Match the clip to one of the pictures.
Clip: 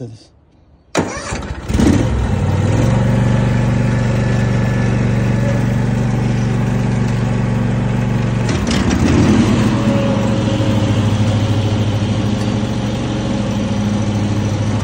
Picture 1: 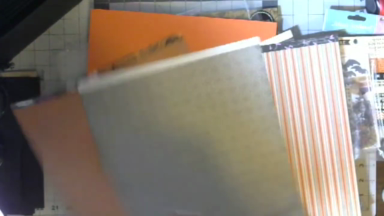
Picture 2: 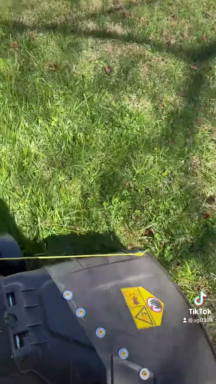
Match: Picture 2